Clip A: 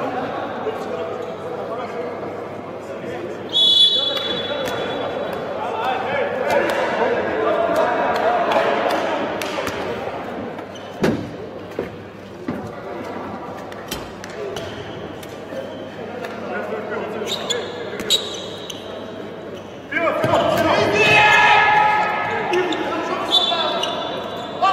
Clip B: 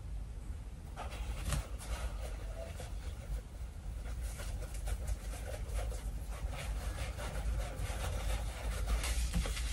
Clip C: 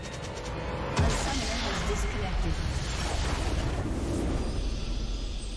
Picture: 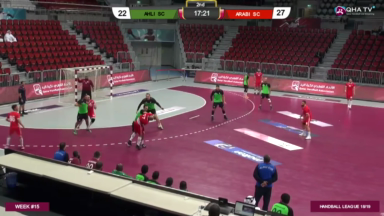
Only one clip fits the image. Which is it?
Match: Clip A